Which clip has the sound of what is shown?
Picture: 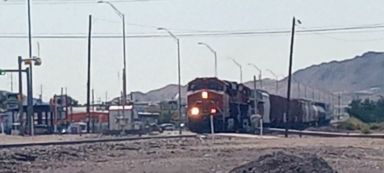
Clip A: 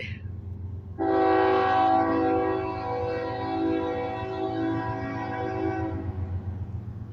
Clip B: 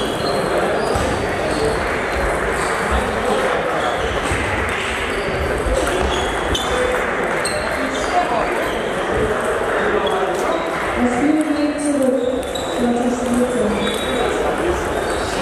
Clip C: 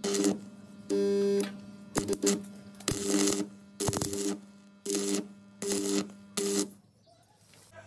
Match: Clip A